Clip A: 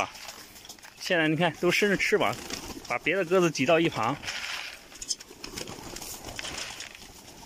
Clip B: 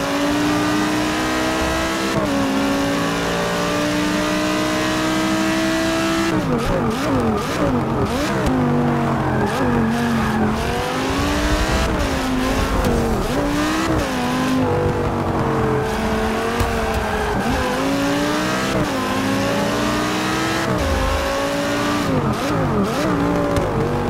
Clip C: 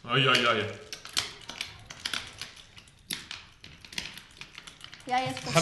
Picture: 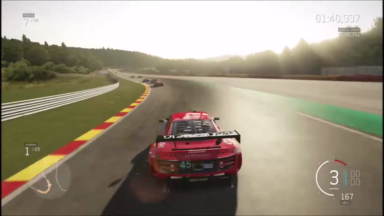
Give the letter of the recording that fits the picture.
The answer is B